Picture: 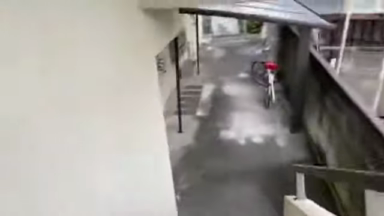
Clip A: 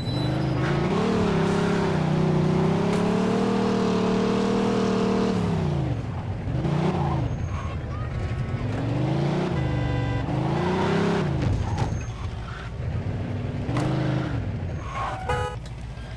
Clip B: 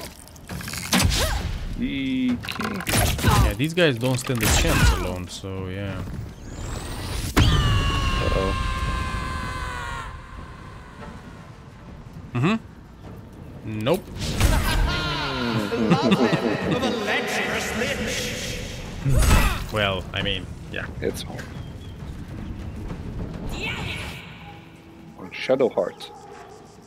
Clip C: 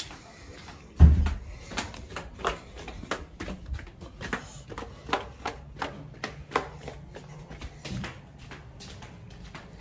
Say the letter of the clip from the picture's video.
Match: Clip C